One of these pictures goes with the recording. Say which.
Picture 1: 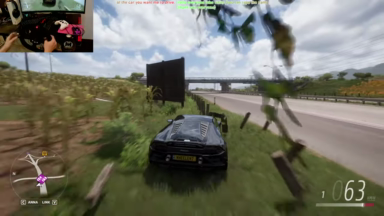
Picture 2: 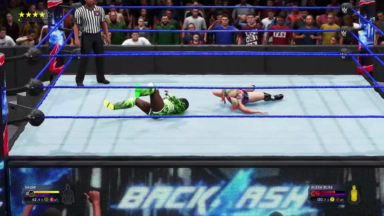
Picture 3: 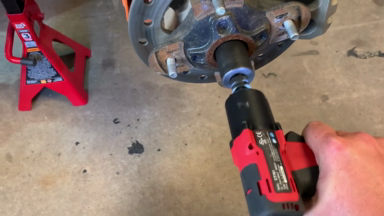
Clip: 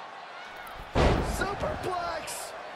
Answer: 2